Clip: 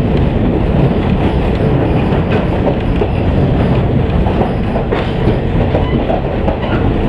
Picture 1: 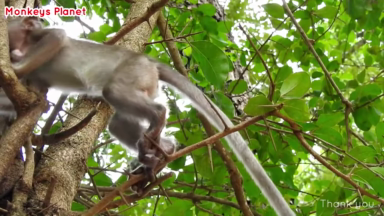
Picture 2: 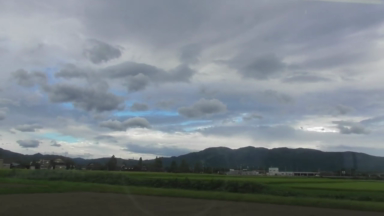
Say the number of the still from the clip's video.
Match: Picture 2